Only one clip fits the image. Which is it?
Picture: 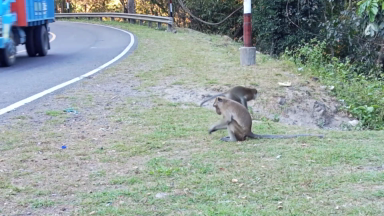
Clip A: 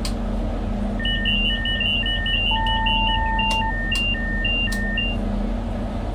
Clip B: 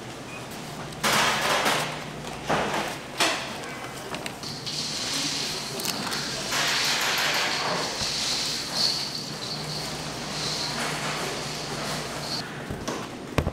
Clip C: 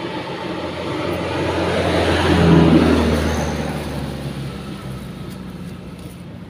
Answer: C